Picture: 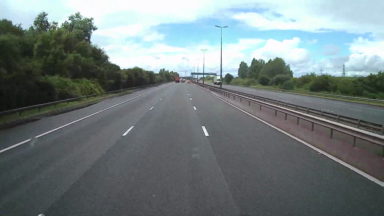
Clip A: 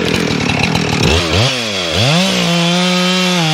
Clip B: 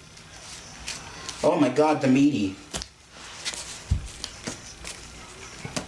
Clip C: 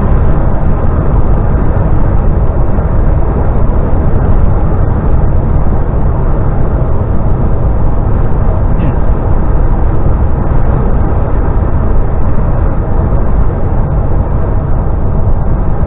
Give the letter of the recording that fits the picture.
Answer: C